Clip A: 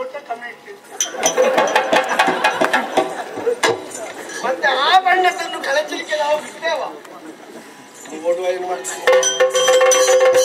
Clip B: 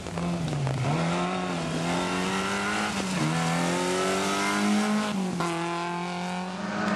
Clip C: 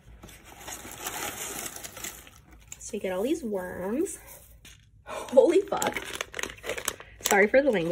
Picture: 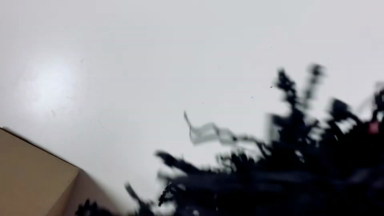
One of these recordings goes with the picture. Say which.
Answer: C